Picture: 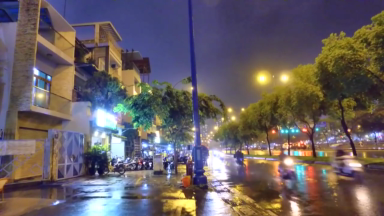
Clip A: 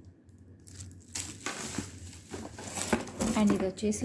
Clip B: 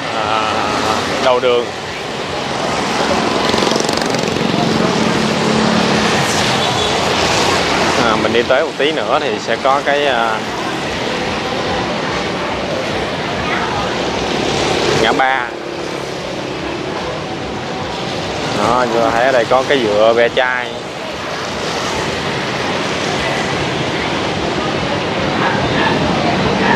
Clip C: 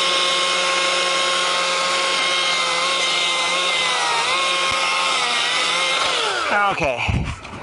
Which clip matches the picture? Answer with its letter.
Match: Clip B